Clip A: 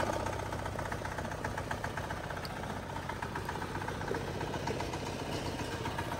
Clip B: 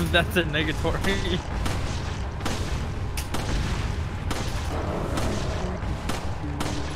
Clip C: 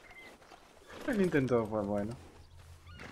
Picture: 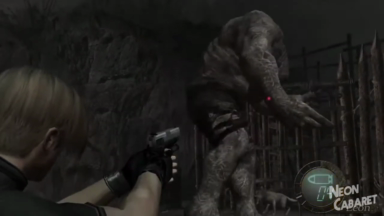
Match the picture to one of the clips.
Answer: B